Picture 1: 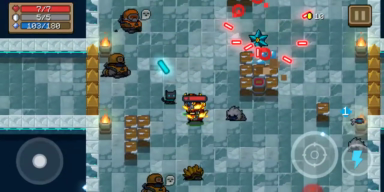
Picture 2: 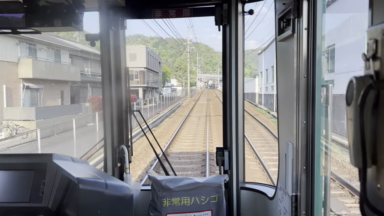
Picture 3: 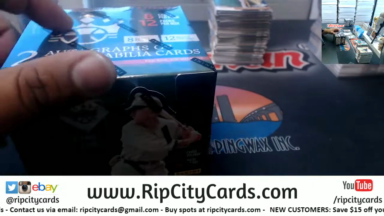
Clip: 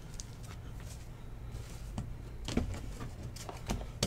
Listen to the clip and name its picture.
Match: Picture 3